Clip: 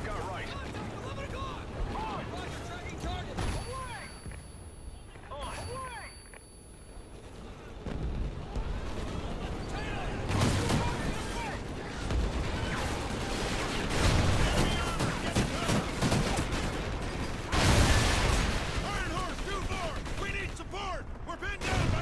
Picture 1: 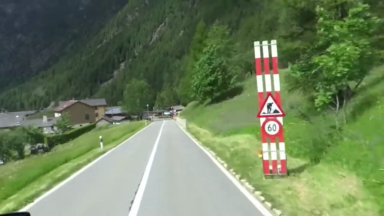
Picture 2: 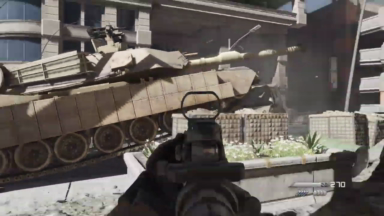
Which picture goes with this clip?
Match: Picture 2